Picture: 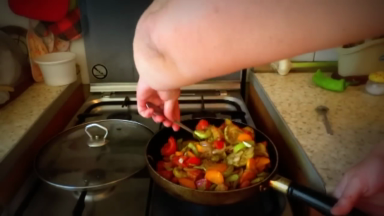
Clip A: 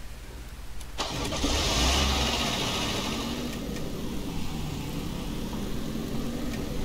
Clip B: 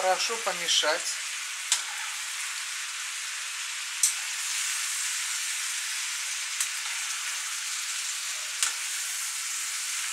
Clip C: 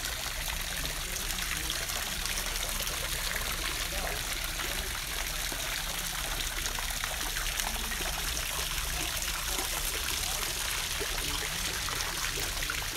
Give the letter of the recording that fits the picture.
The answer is B